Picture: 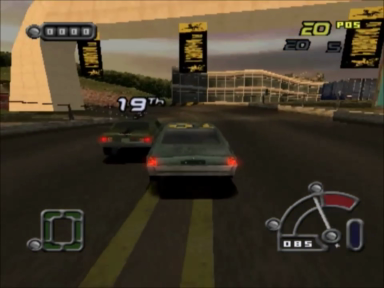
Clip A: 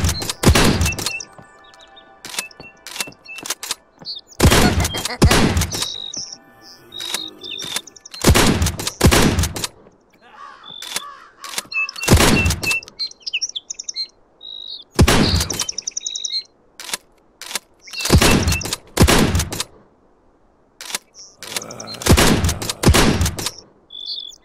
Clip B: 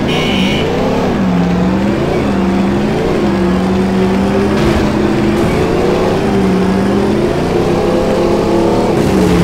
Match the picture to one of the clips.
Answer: B